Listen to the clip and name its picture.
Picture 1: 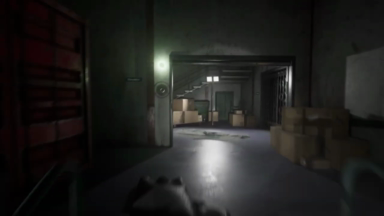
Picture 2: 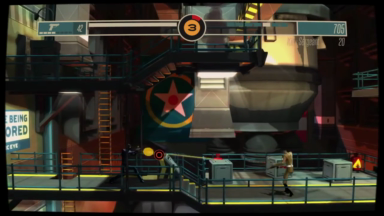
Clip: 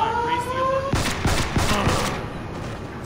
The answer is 2